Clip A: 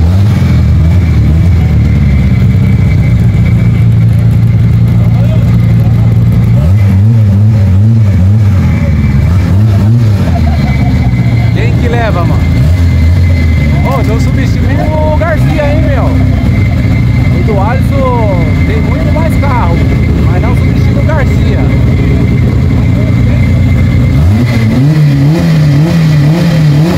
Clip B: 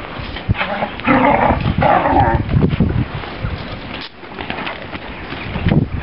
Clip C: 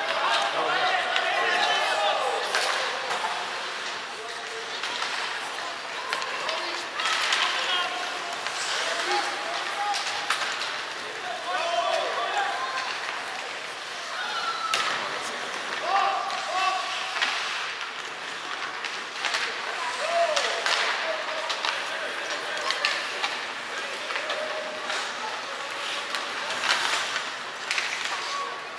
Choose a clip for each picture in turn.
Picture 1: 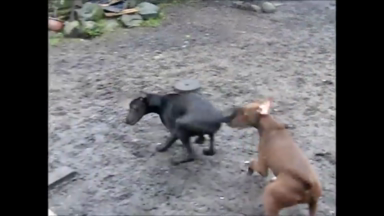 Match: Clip B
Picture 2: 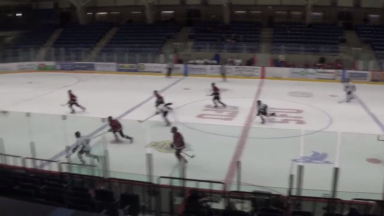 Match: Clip C